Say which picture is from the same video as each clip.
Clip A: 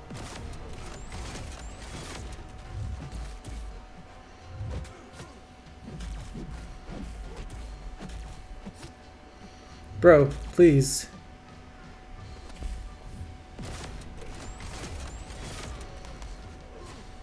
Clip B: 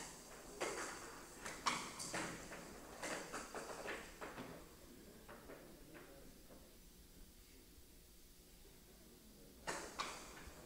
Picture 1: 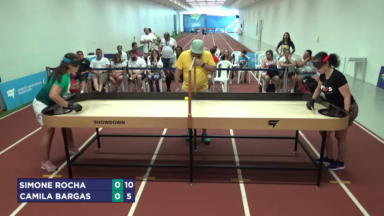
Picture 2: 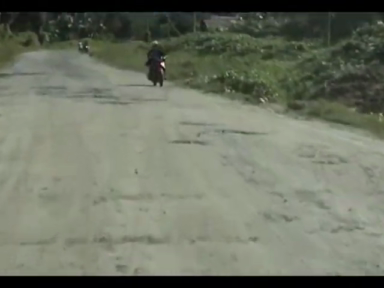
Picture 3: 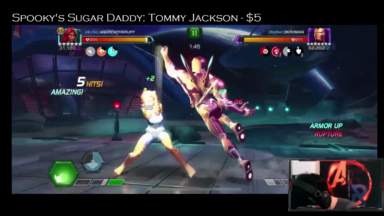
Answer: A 3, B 1